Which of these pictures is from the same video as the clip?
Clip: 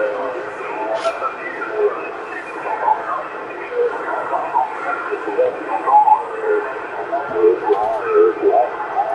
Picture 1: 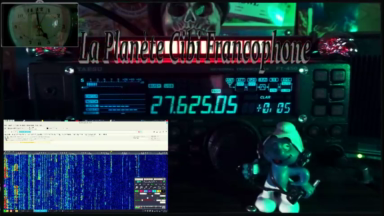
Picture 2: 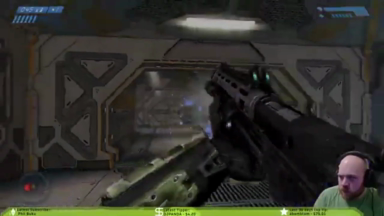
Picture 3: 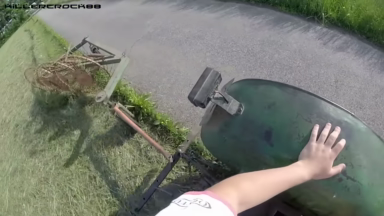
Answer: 1